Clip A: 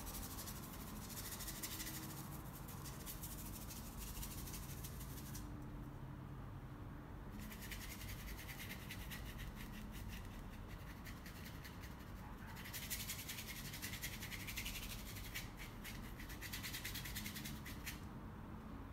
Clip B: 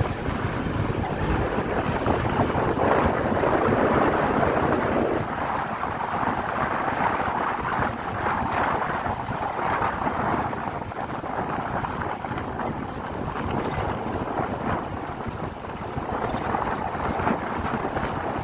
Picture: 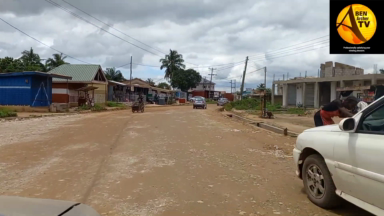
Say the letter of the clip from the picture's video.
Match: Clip B